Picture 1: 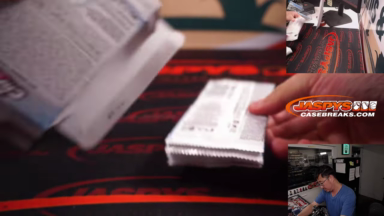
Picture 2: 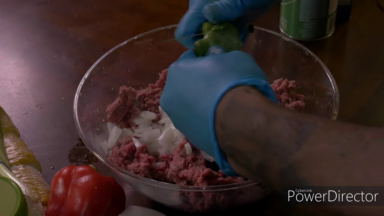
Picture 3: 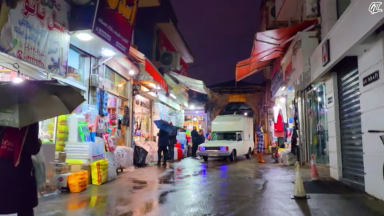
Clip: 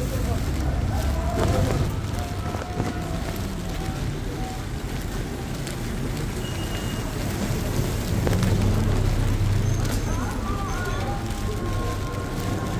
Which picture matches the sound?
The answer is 3